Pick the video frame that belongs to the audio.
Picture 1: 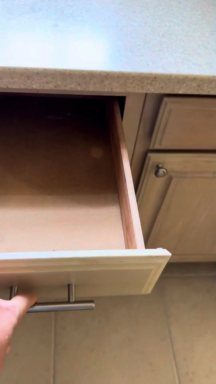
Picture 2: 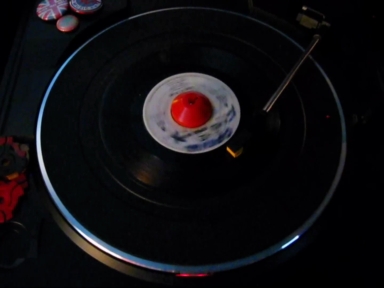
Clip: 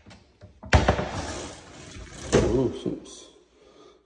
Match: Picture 1